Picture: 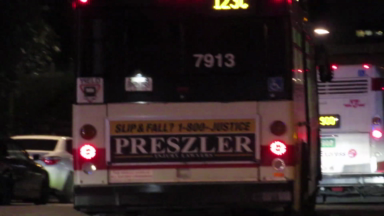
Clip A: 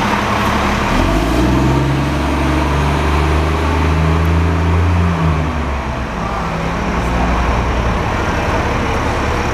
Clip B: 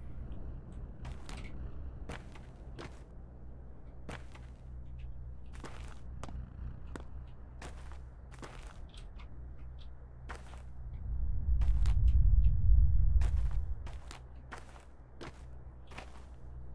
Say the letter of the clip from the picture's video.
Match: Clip A